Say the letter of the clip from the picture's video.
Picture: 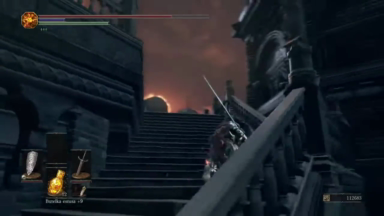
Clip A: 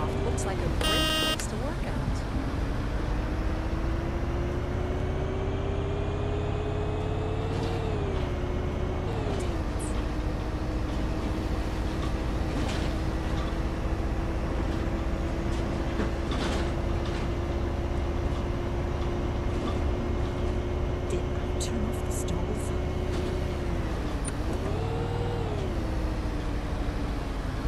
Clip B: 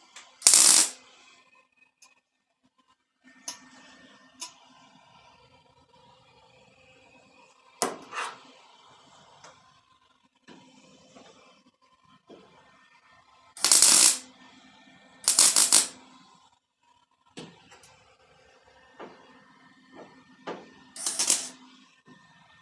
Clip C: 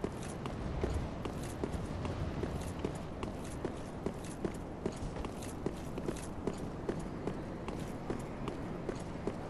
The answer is C